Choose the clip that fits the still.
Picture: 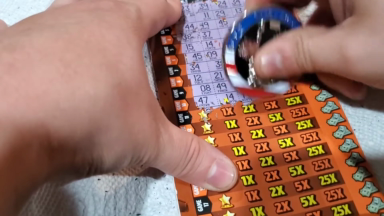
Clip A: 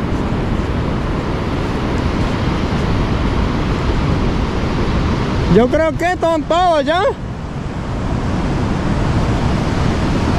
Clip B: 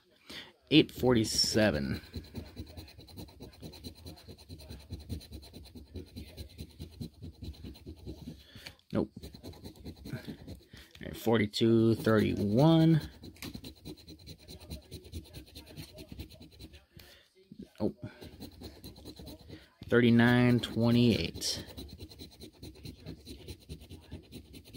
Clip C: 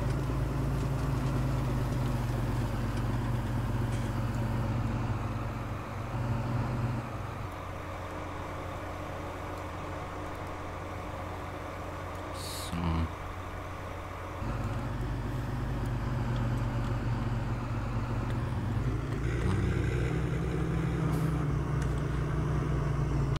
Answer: B